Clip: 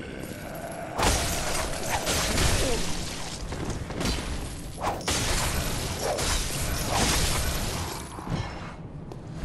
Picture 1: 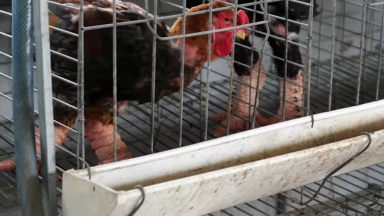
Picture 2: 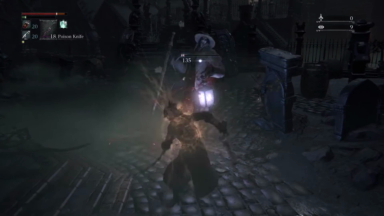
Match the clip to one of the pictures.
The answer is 2